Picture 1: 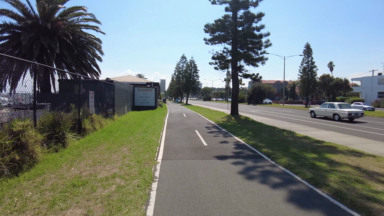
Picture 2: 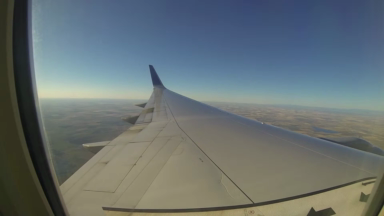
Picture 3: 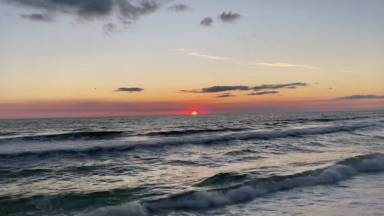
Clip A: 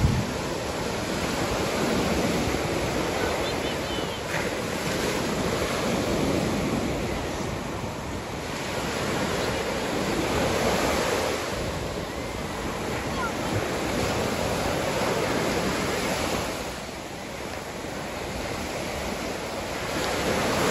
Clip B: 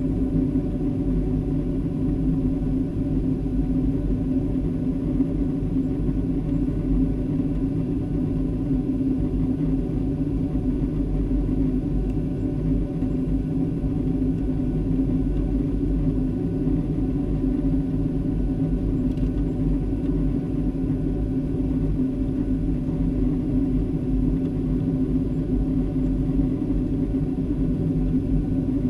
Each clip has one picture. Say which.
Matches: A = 3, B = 2